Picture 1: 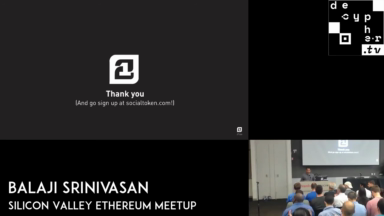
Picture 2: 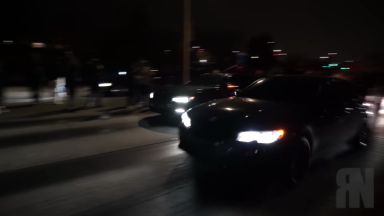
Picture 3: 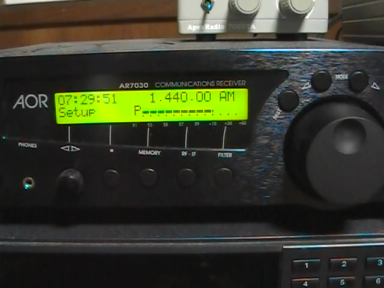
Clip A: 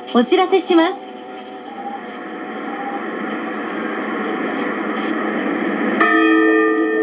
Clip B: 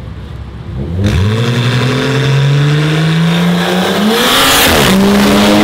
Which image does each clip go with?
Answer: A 3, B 2